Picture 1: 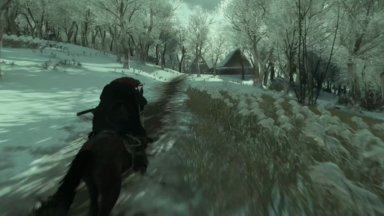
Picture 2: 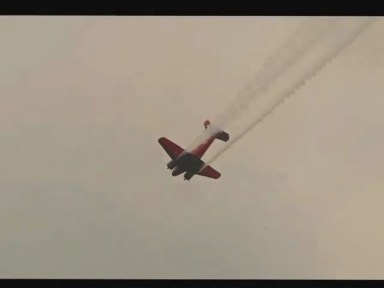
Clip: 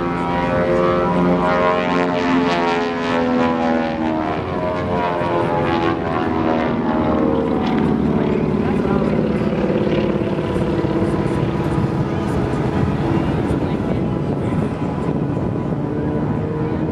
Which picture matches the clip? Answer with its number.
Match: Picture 2